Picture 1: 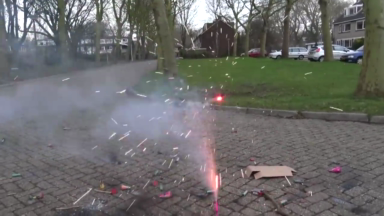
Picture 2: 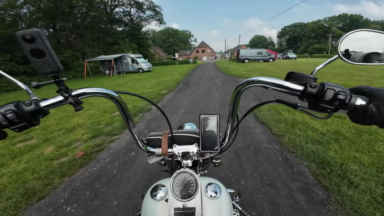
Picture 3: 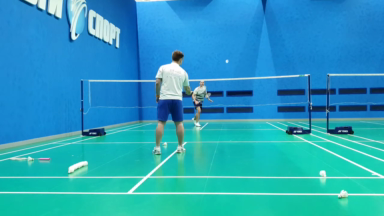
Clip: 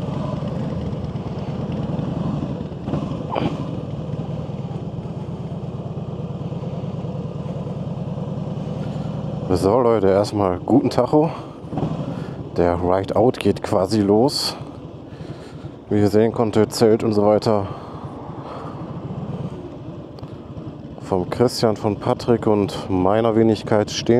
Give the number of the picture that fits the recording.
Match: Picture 2